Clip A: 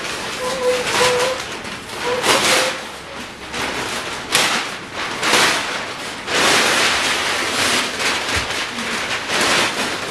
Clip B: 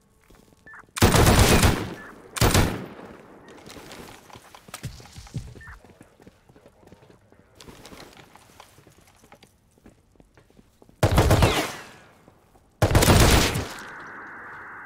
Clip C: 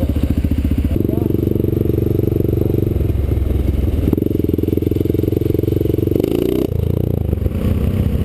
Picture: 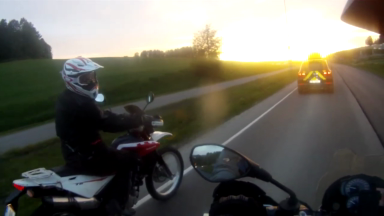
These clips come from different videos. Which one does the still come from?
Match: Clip C